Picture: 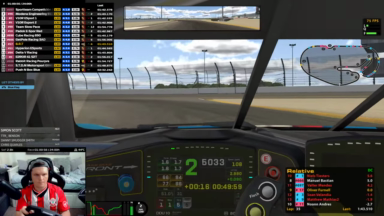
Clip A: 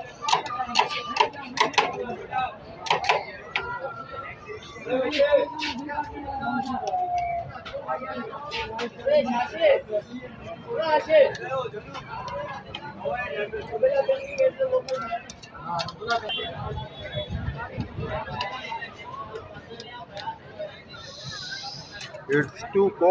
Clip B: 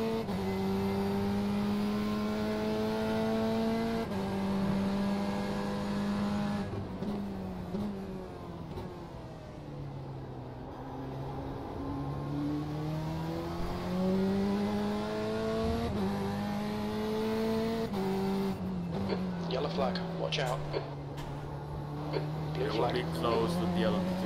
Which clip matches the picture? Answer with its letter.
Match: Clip B